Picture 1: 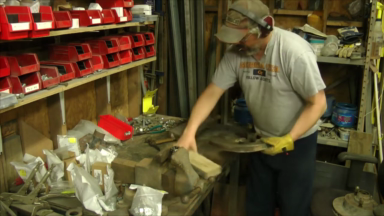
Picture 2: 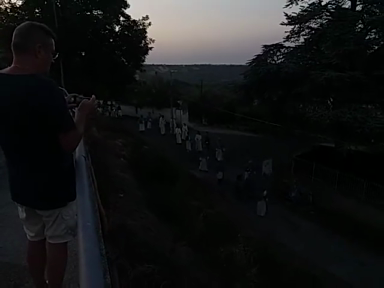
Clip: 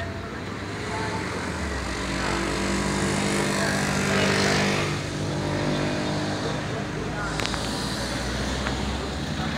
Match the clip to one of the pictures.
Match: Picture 2